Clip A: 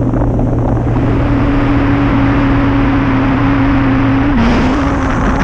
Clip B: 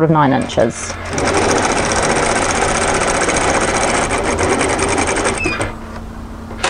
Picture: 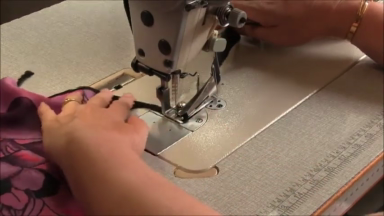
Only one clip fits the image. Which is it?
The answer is B